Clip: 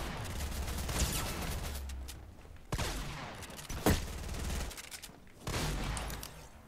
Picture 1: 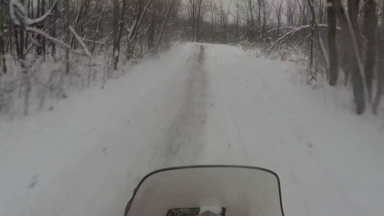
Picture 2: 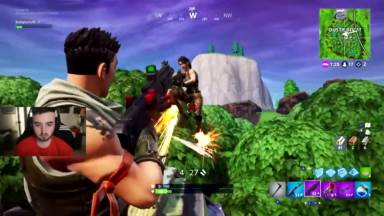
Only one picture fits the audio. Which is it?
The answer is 2